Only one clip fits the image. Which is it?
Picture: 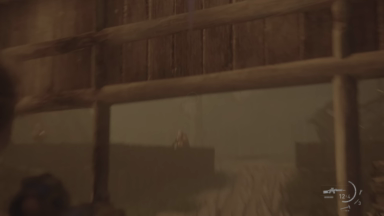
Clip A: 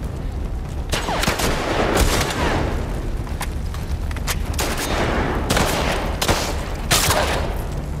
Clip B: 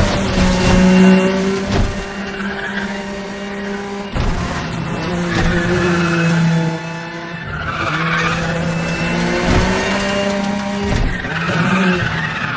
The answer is A